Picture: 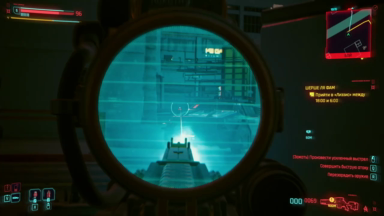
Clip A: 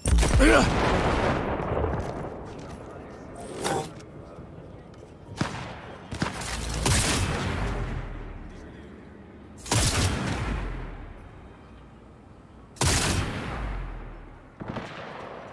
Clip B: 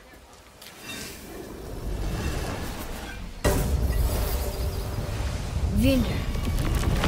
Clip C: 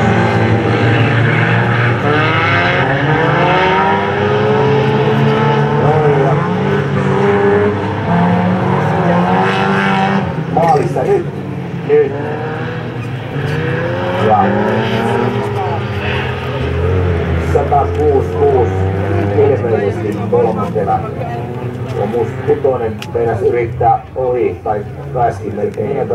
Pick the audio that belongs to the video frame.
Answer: A